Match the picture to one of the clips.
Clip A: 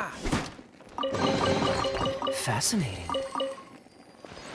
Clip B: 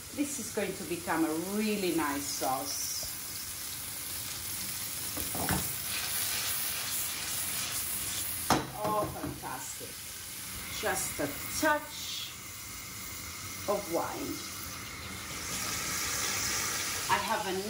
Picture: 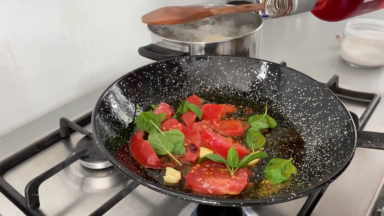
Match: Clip B